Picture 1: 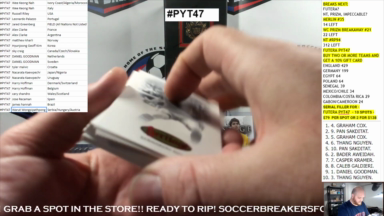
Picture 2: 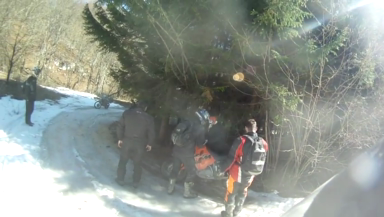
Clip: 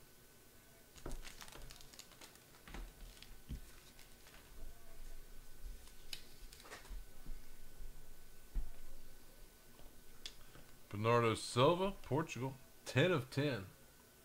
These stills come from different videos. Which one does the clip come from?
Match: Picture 1